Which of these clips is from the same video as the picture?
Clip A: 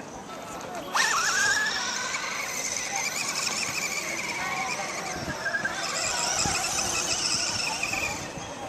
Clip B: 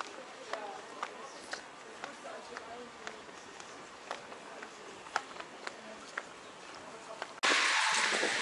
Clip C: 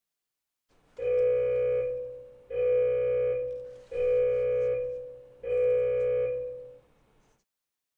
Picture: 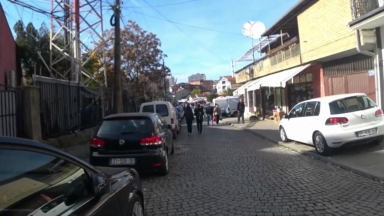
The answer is B